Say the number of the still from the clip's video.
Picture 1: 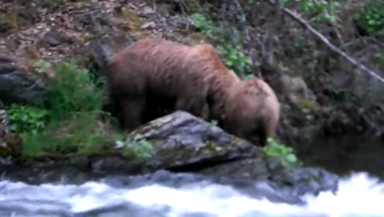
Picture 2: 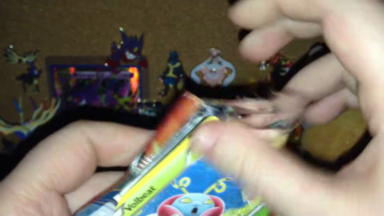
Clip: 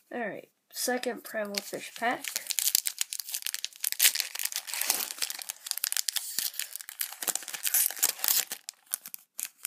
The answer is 2